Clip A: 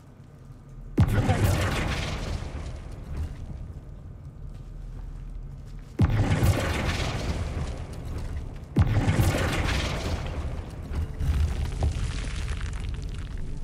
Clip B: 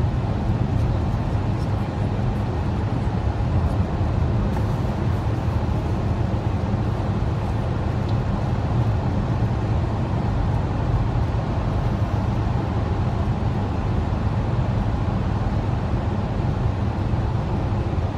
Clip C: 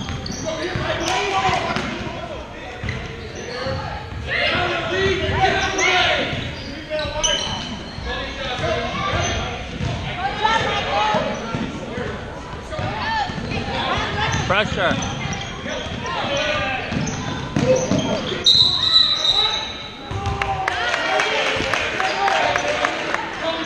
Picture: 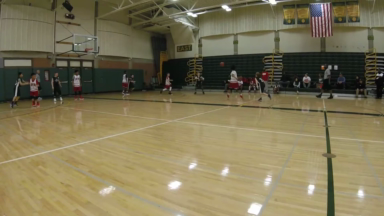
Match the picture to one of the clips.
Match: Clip C